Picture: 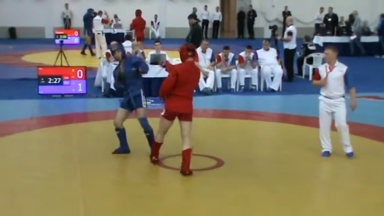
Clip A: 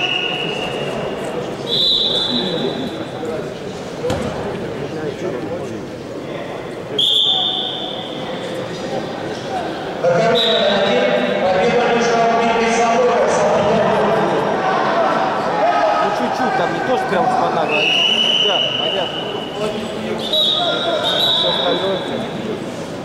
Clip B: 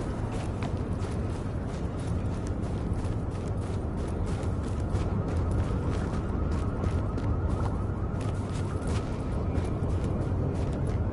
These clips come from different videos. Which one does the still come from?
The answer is A